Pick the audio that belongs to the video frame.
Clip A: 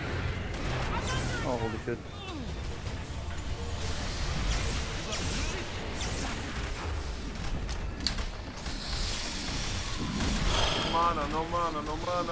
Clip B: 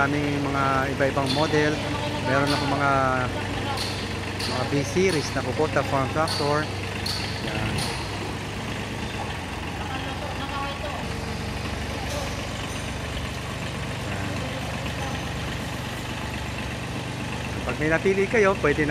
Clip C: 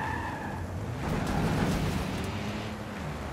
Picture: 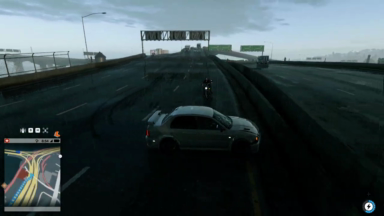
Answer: C